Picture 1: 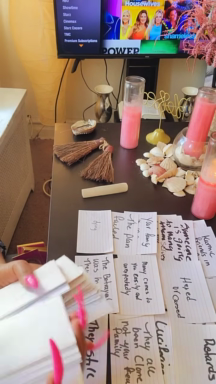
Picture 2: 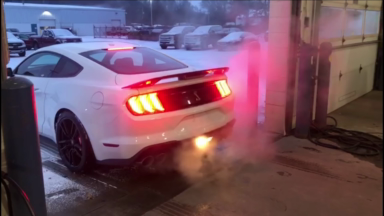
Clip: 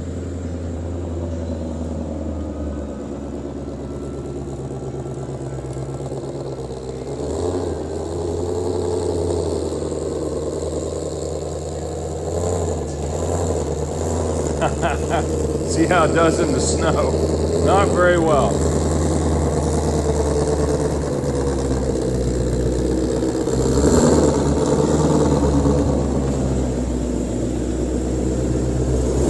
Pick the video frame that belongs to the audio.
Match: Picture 2